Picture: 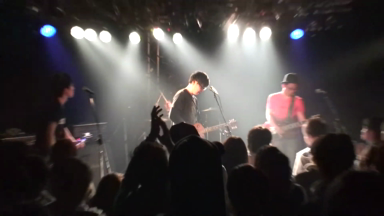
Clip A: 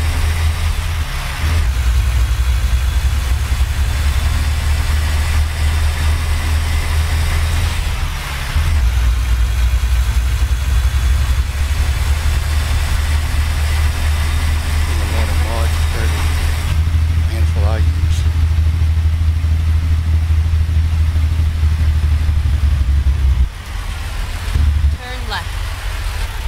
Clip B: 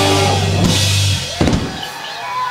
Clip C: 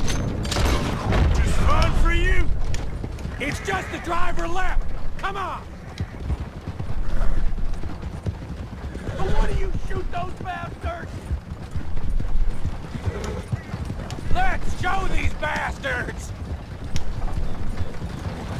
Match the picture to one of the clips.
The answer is B